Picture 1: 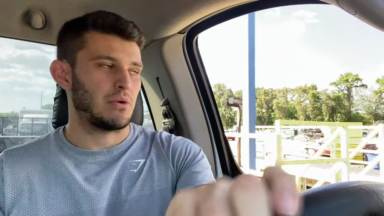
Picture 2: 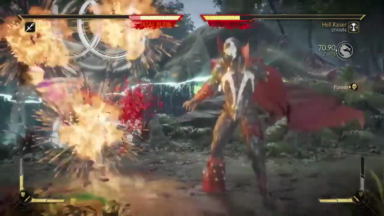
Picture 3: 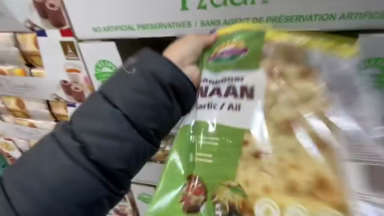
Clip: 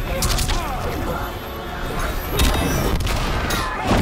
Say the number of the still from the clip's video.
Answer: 2